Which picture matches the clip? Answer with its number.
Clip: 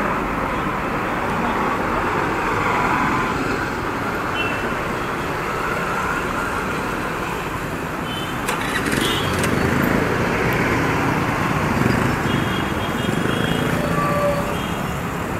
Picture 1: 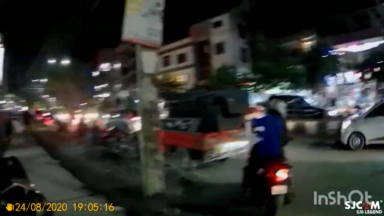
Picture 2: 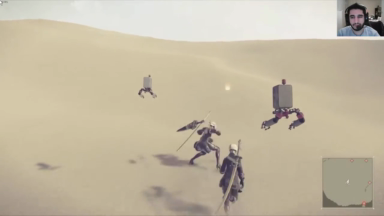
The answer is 1